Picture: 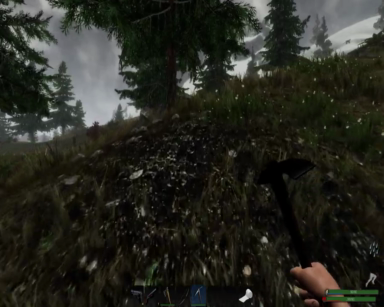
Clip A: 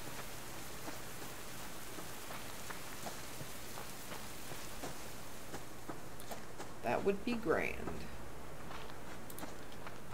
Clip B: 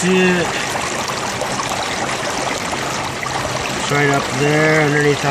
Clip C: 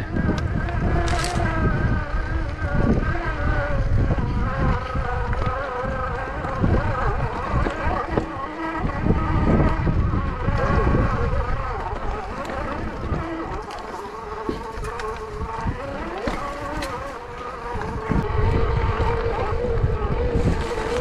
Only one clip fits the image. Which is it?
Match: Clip A